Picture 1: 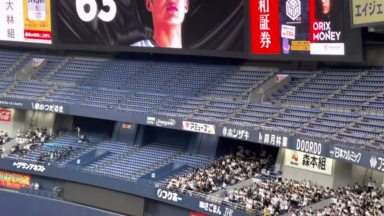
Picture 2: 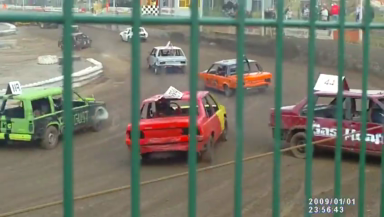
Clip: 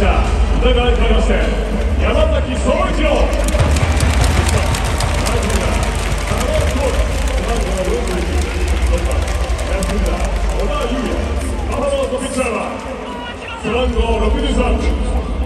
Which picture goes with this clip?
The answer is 1